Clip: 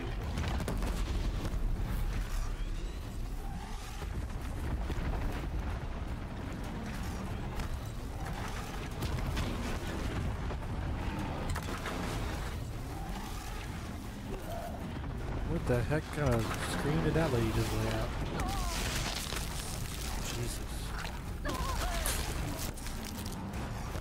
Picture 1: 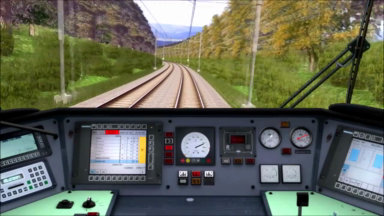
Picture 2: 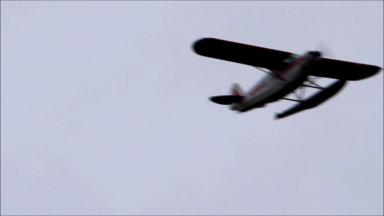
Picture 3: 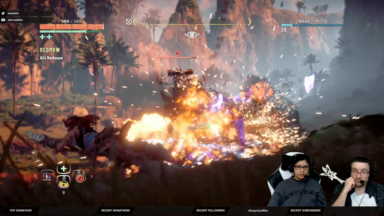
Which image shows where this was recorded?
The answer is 3